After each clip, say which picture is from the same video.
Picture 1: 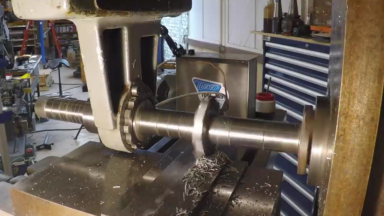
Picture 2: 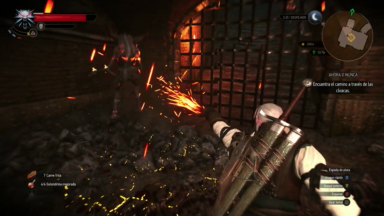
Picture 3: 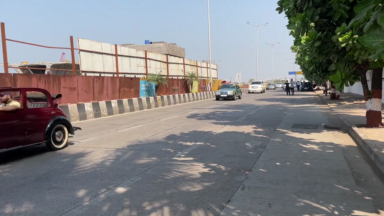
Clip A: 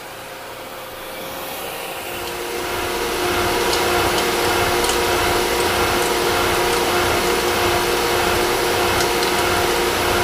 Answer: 1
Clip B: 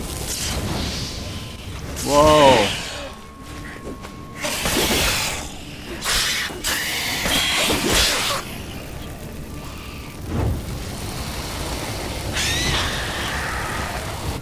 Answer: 2